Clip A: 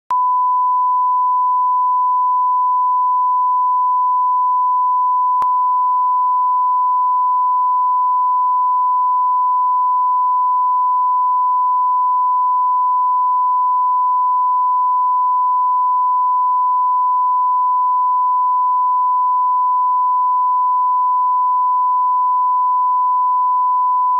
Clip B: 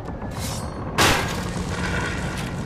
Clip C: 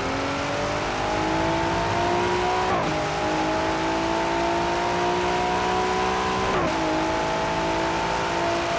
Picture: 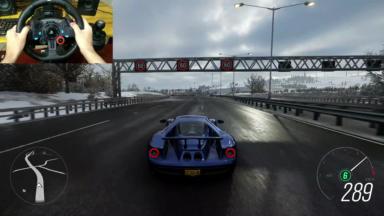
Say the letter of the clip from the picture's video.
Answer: C